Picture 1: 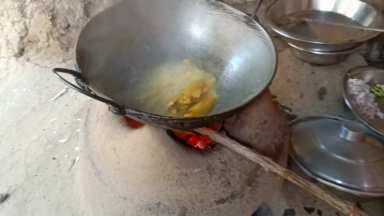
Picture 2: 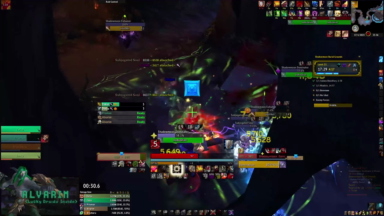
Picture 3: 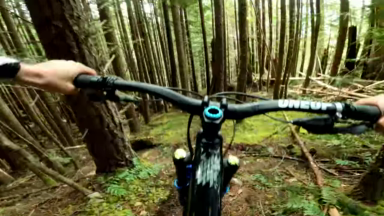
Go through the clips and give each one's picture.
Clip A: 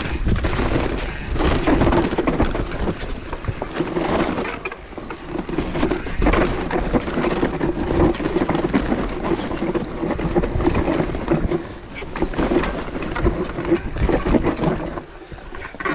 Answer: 3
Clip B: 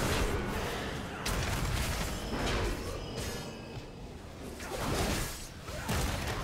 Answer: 2